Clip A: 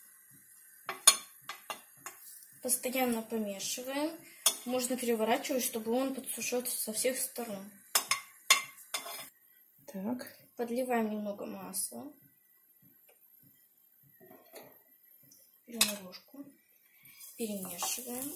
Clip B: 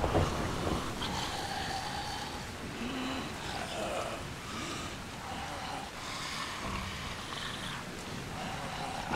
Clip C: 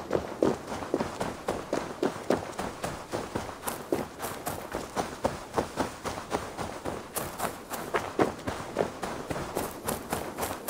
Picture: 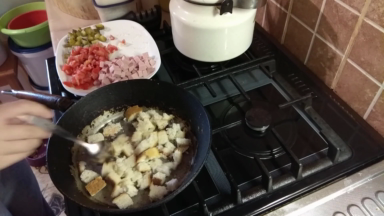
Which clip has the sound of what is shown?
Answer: A